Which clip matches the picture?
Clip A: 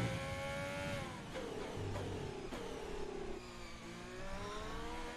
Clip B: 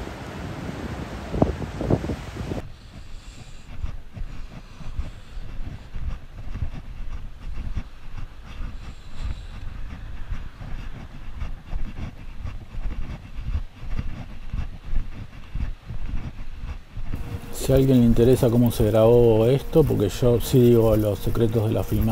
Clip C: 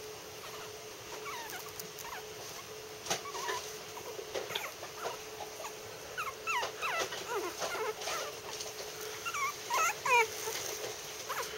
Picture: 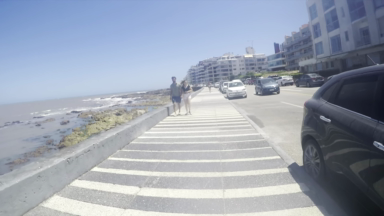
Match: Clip B